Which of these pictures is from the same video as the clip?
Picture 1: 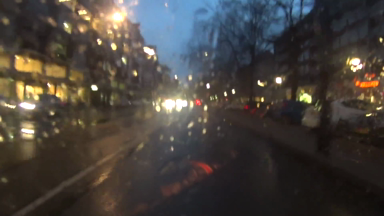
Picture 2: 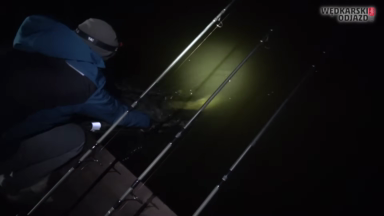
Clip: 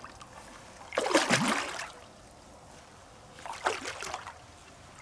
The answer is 2